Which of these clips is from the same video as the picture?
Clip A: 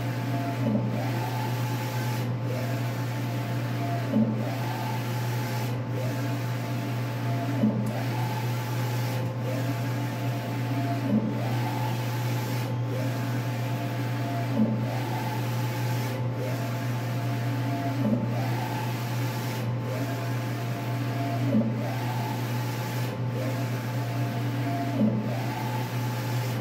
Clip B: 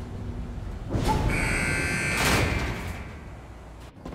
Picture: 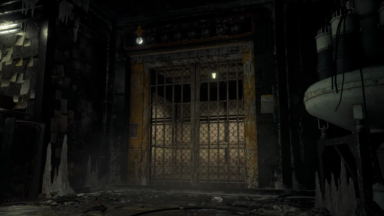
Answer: B